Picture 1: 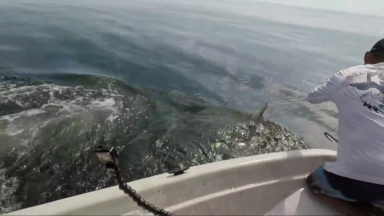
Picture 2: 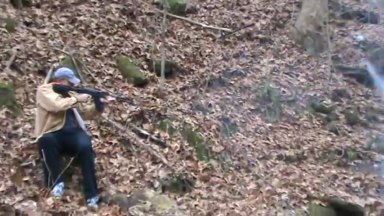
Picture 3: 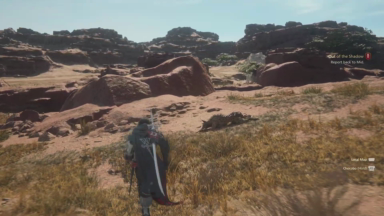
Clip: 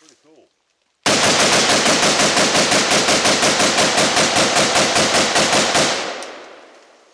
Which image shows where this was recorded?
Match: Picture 2